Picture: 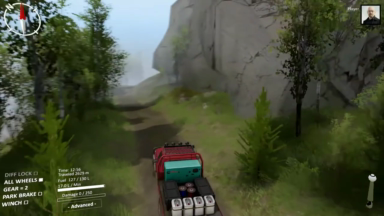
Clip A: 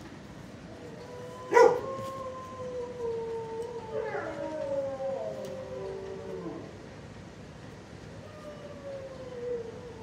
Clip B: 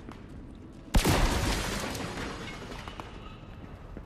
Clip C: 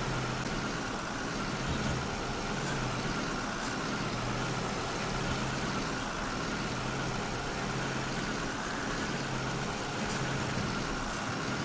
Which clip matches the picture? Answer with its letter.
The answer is C